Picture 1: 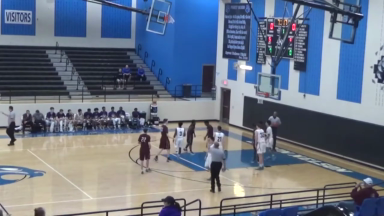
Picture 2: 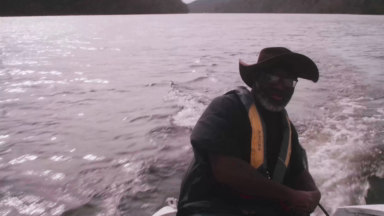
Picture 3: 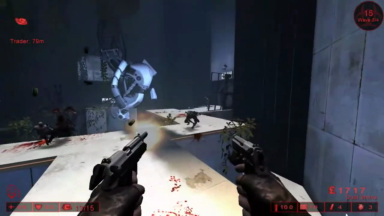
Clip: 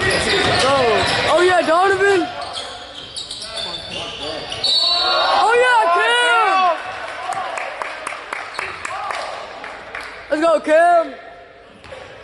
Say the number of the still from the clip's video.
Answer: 1